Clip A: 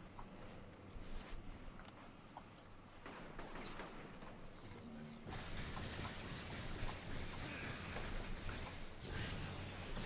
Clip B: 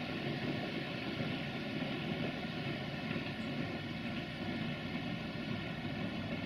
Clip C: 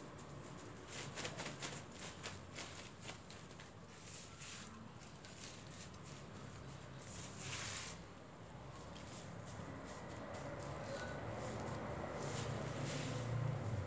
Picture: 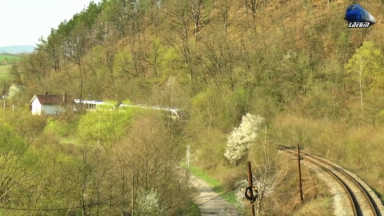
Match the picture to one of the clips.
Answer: B